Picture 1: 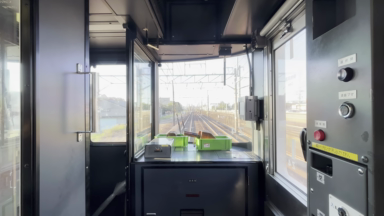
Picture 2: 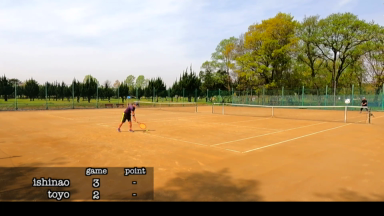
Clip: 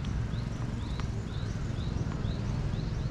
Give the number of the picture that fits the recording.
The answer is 2